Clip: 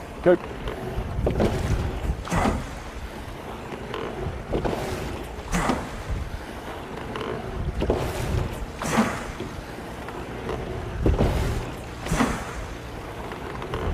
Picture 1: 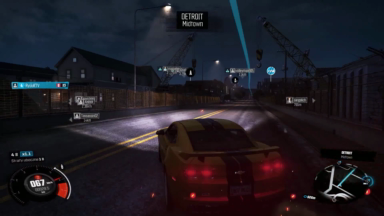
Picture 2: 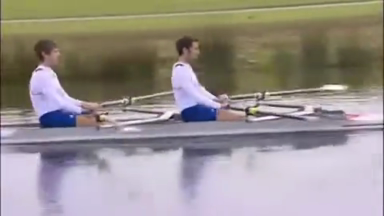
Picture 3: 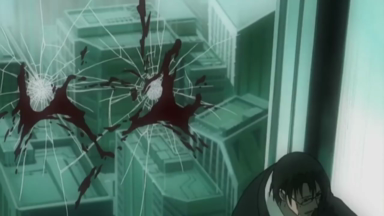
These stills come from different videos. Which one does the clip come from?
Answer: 2